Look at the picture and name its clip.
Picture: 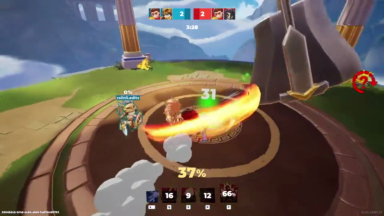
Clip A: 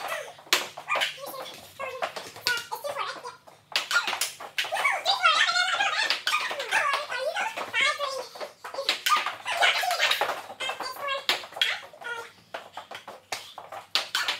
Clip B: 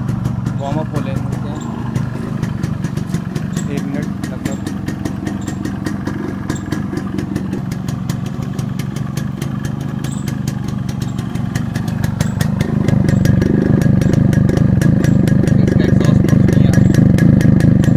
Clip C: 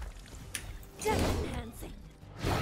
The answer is C